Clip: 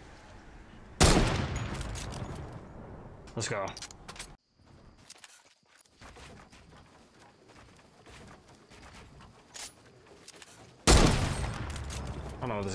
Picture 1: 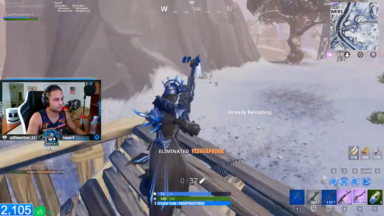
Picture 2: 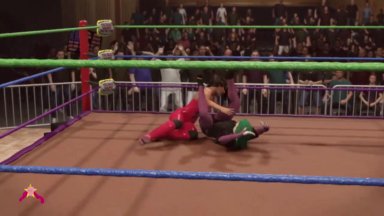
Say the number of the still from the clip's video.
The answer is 1